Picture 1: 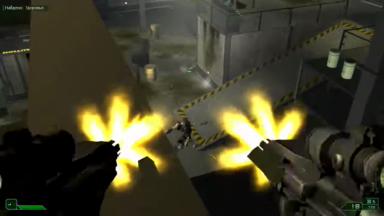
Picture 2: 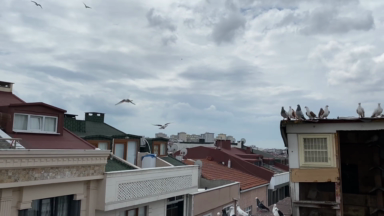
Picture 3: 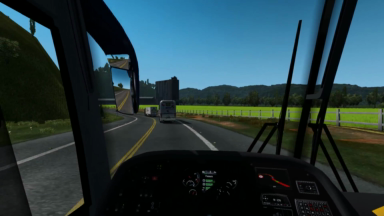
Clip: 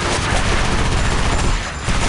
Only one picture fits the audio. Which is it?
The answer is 1